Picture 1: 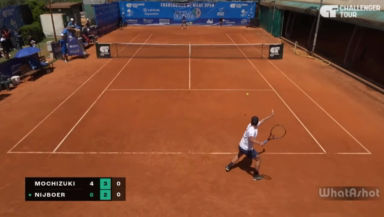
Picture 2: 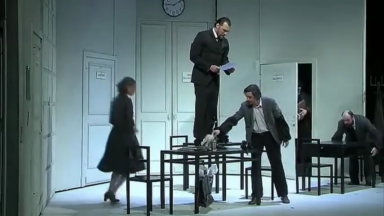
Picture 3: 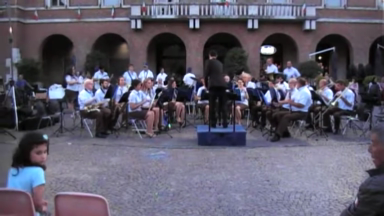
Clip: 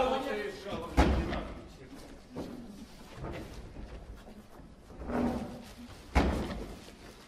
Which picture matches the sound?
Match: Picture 2